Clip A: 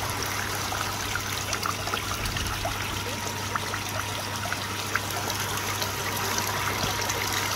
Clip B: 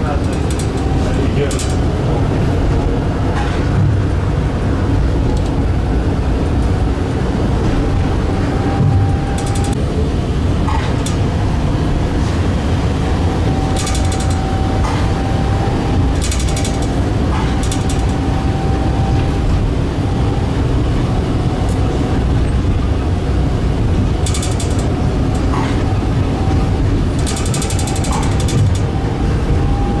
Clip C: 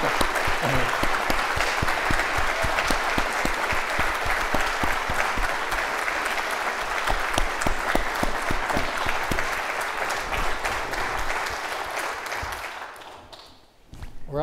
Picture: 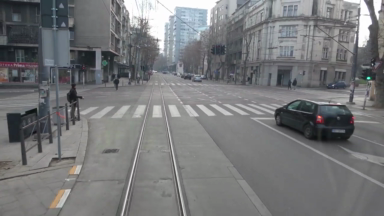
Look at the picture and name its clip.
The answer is B